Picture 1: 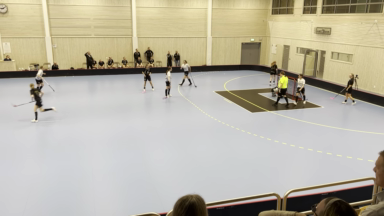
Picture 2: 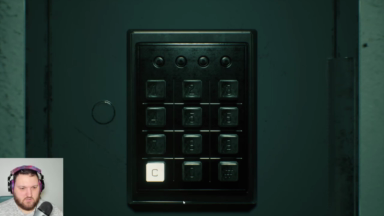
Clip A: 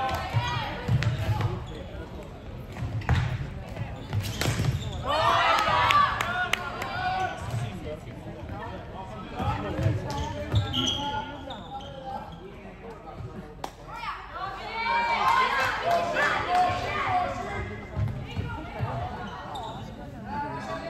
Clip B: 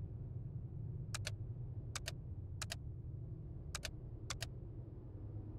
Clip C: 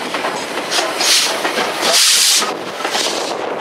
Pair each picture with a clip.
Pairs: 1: A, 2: B